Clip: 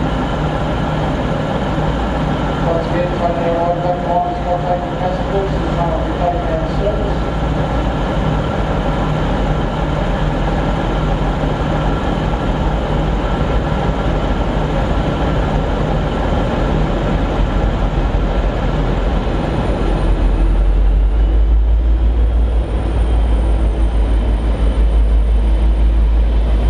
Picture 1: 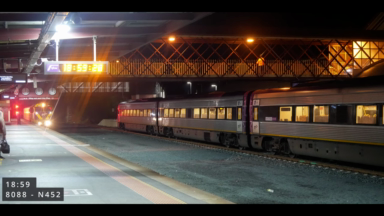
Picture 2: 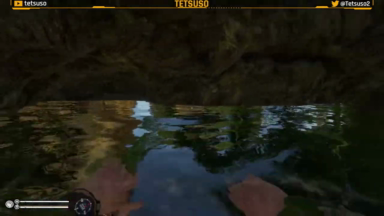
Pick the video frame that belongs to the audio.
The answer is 1